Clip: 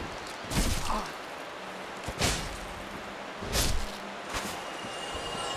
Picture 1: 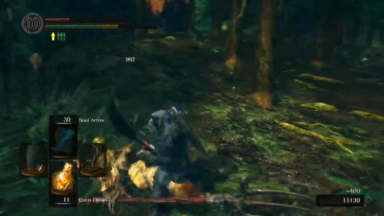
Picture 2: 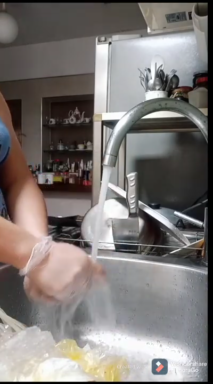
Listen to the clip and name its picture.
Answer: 1